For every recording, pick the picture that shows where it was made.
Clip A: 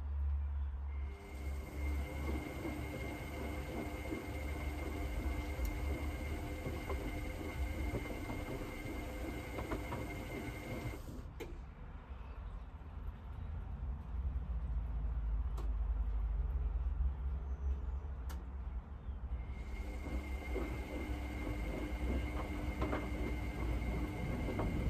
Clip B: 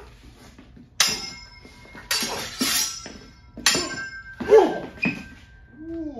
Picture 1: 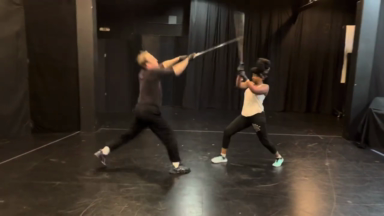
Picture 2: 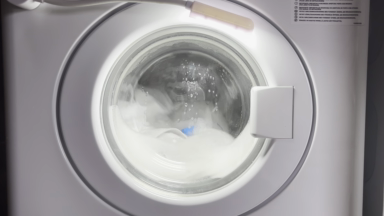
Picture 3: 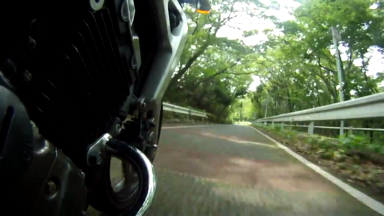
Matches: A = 2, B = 1